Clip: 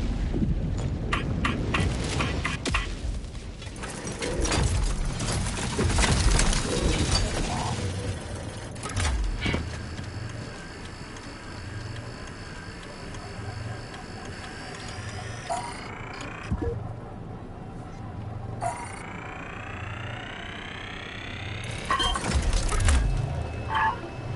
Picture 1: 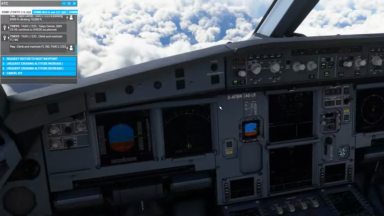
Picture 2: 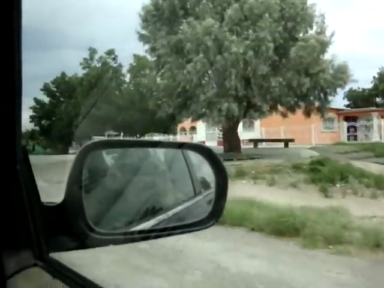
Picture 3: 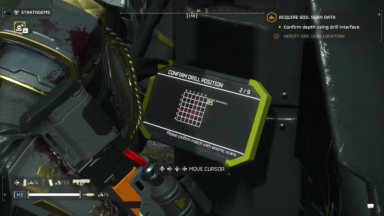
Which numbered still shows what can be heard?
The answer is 3